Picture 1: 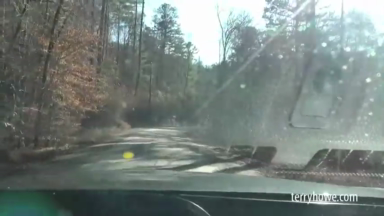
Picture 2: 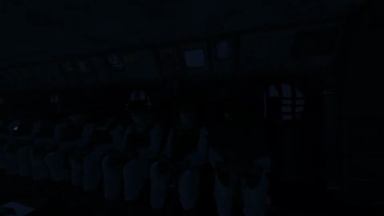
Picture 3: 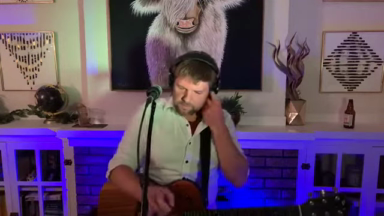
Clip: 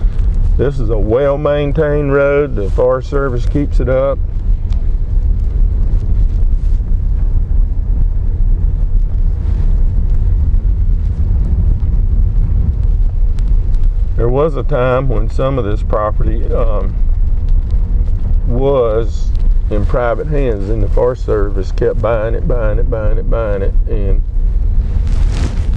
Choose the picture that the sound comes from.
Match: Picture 1